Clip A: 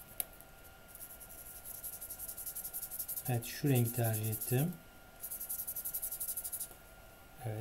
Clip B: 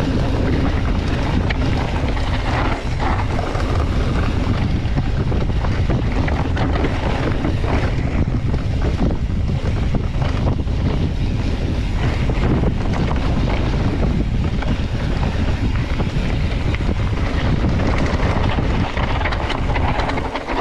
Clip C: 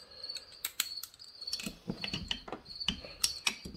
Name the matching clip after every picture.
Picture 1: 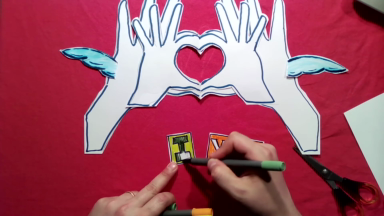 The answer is A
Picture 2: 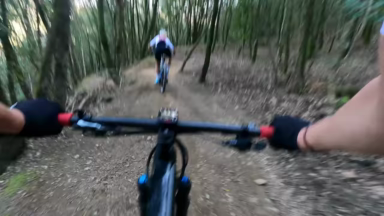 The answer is B